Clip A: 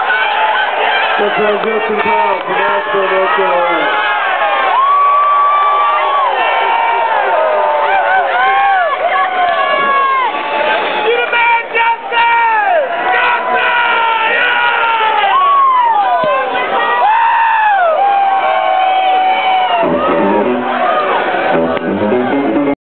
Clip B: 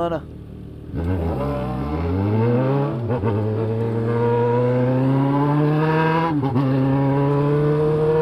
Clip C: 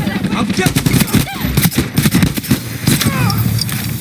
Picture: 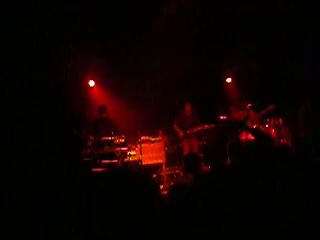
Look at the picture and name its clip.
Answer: A